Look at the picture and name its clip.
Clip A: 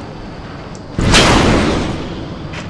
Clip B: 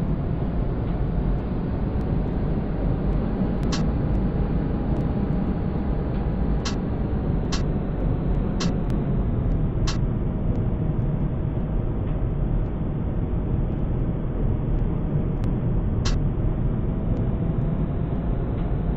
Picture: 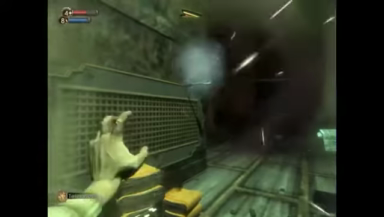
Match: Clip A